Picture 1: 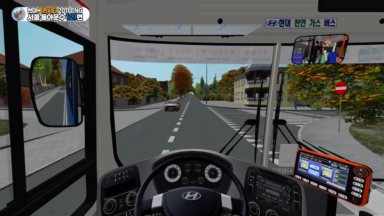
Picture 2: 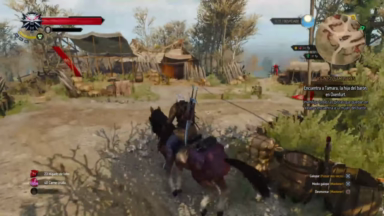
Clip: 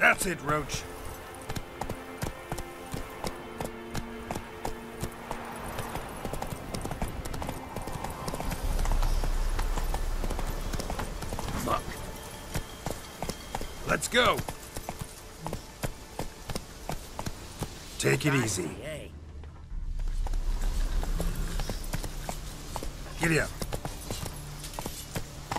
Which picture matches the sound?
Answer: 2